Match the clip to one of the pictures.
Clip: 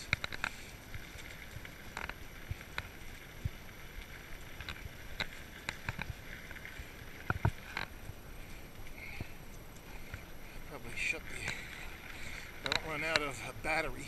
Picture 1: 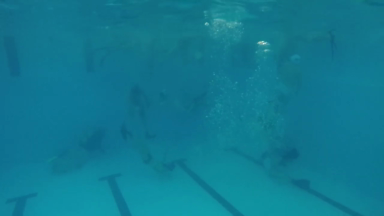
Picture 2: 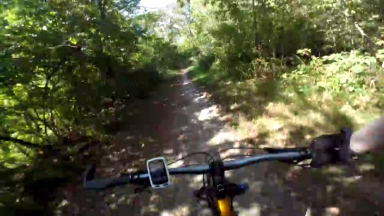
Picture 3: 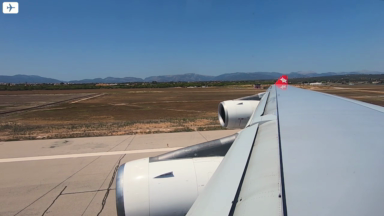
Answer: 2